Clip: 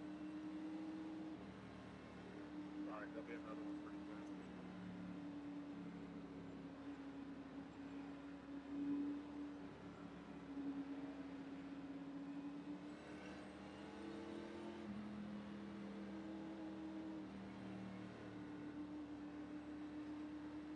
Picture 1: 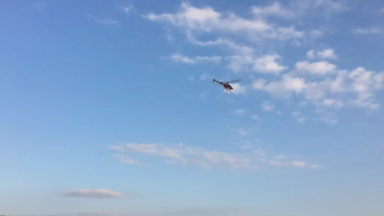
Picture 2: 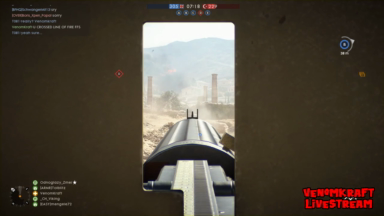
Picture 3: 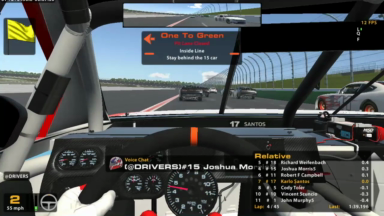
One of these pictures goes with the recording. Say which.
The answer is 3